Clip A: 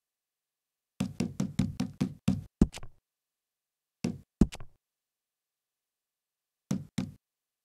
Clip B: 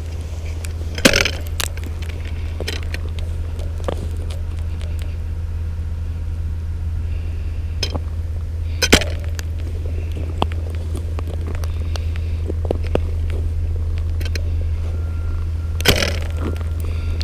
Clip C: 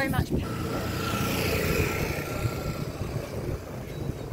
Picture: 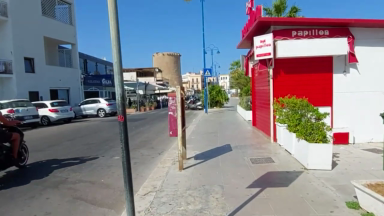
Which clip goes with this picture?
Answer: C